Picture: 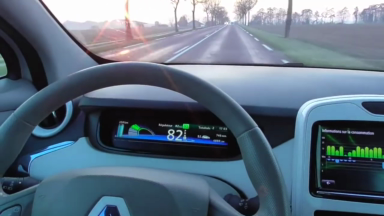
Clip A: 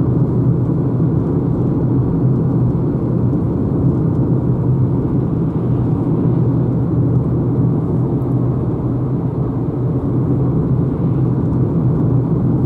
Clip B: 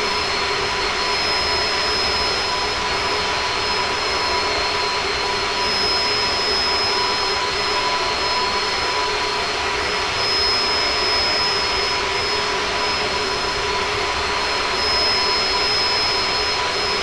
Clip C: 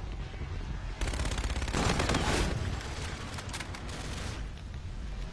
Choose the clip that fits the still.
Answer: A